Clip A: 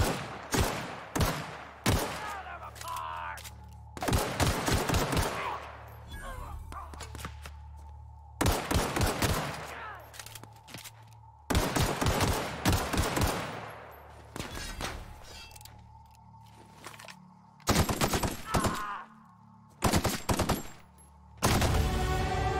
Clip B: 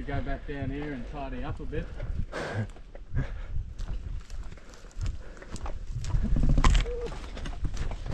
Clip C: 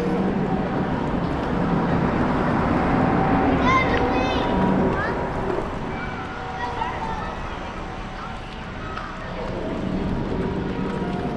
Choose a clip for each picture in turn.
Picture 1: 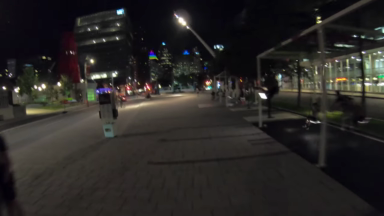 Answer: C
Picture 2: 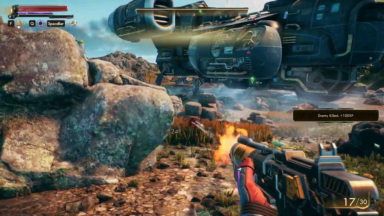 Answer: A